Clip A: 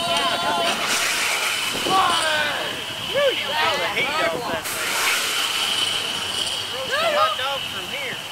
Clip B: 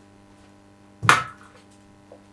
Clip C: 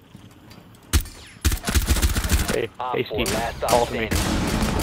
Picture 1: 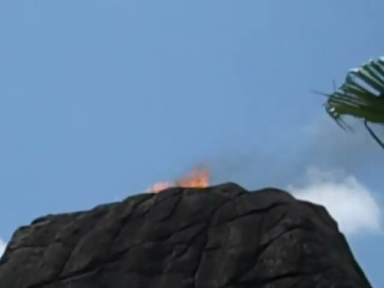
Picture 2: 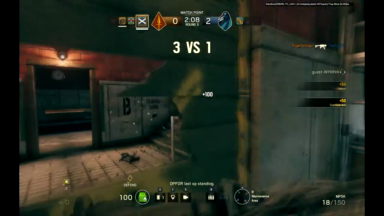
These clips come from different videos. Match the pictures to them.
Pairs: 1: A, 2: C